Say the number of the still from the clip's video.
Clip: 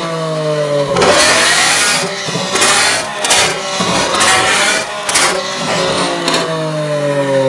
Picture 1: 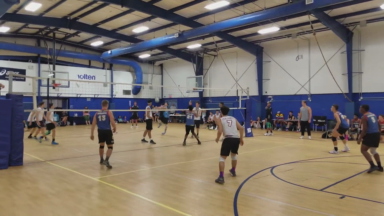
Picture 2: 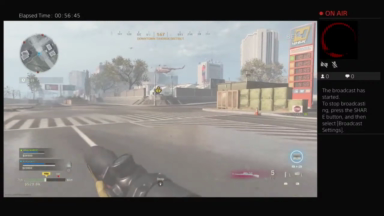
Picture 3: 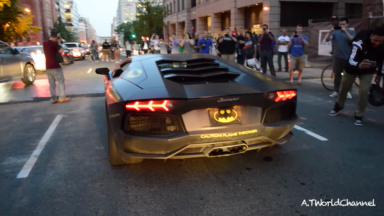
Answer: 3